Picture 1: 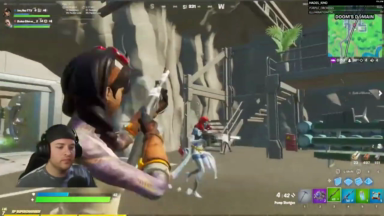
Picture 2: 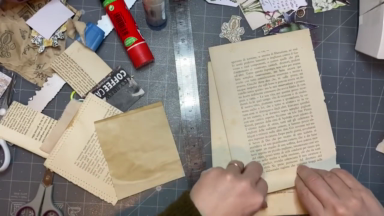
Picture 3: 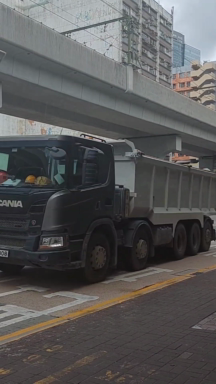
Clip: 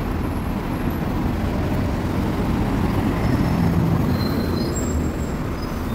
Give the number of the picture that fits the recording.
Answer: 3